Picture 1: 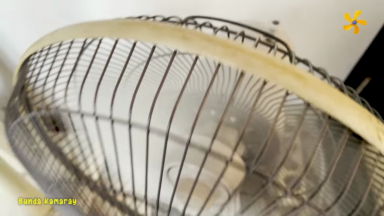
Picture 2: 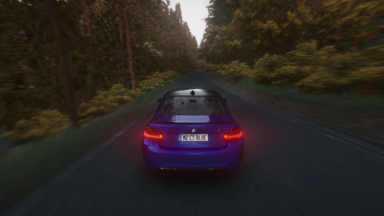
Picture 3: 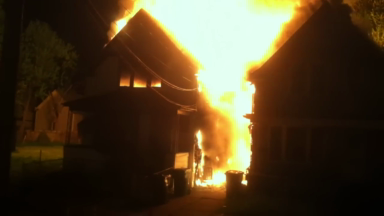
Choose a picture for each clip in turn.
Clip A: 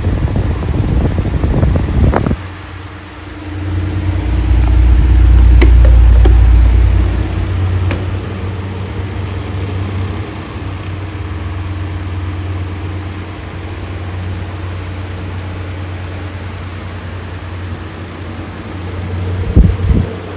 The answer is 1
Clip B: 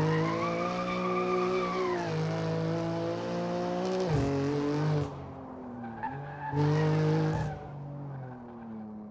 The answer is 2